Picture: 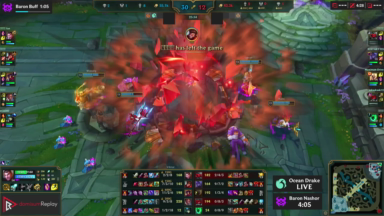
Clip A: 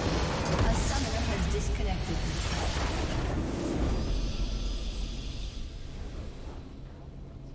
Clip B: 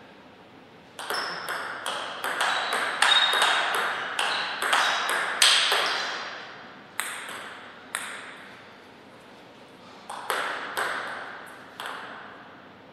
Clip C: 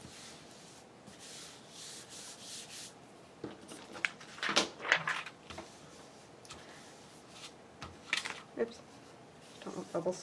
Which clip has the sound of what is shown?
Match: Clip A